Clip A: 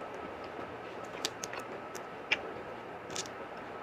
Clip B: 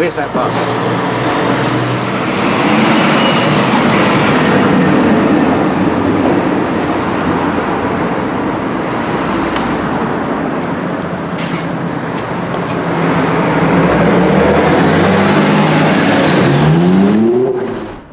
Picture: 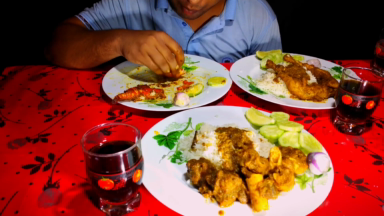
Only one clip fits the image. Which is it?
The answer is A